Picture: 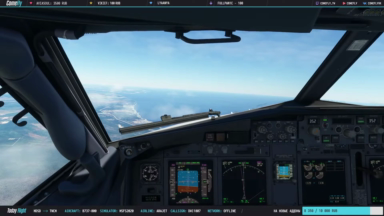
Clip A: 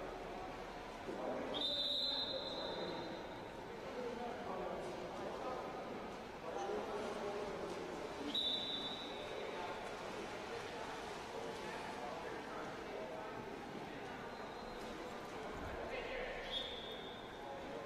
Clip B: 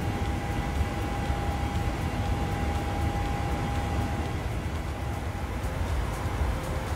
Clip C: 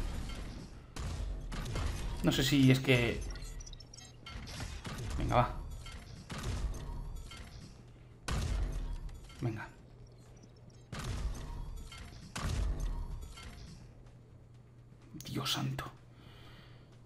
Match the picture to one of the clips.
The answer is B